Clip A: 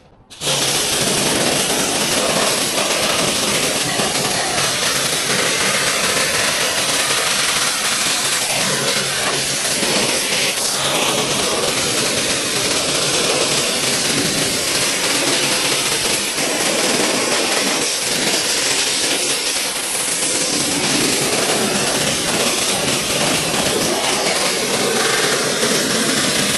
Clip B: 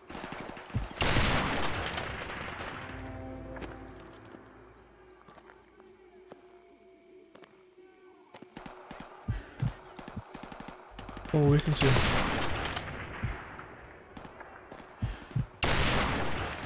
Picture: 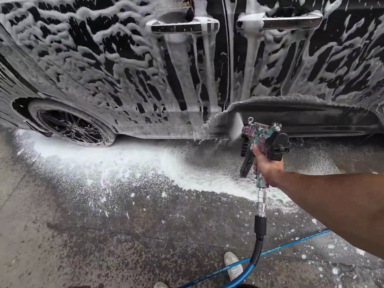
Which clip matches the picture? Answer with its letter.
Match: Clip A